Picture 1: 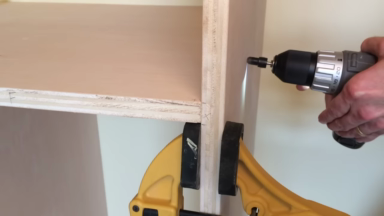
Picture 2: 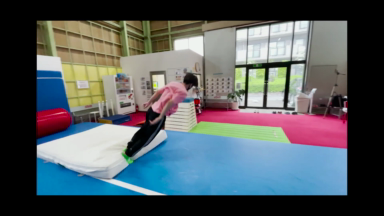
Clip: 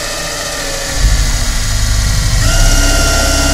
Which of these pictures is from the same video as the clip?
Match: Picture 1